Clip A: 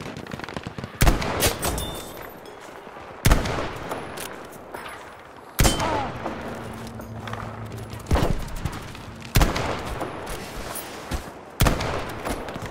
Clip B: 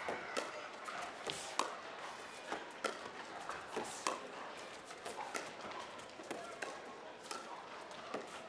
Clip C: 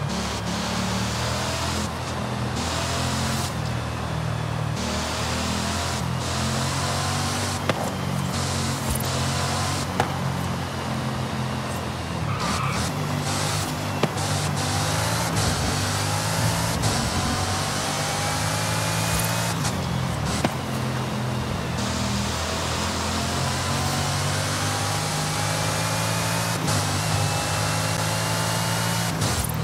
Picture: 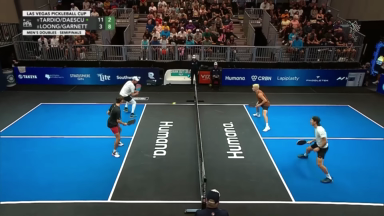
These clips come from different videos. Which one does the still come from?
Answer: B